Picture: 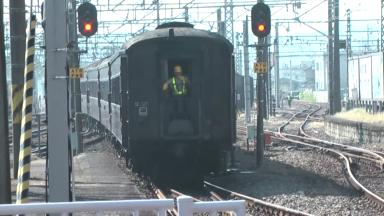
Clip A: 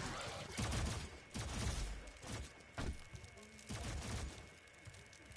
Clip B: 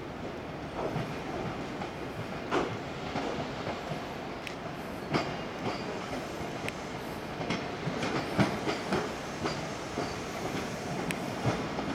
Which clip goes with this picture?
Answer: B